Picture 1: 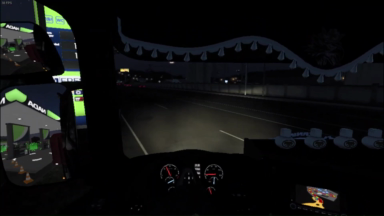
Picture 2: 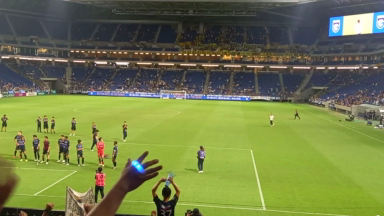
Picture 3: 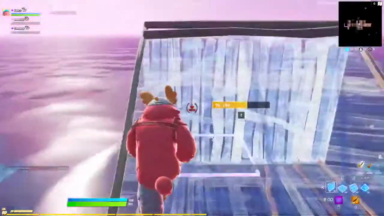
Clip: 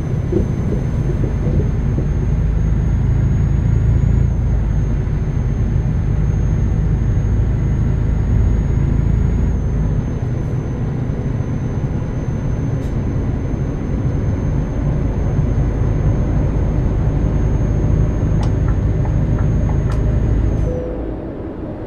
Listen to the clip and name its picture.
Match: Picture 1